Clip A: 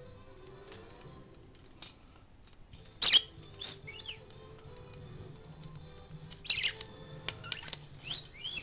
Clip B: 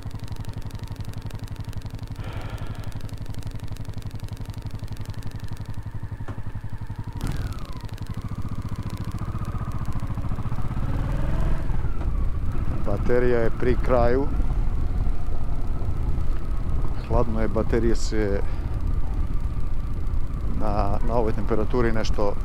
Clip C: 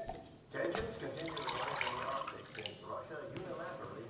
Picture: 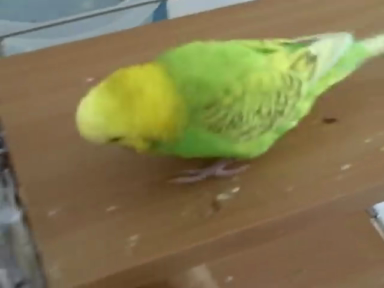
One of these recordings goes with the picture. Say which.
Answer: A